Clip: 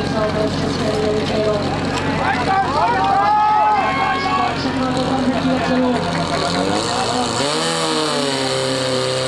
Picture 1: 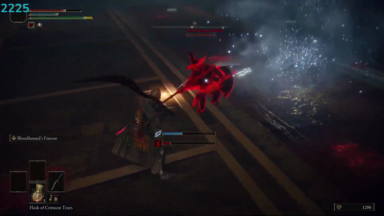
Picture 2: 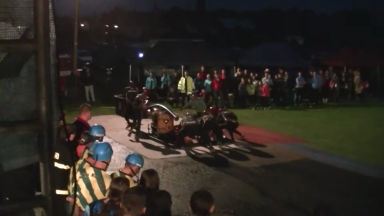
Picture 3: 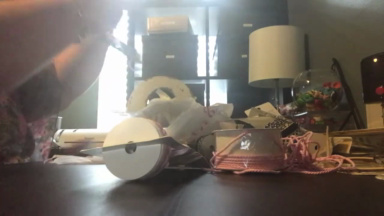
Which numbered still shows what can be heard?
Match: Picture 2